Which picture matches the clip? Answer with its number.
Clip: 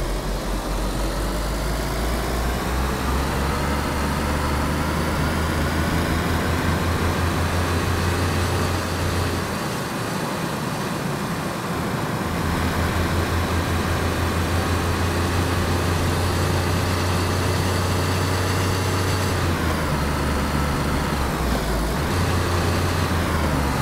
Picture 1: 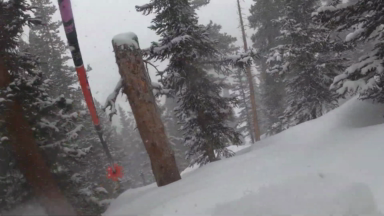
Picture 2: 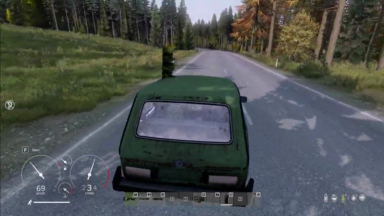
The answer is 2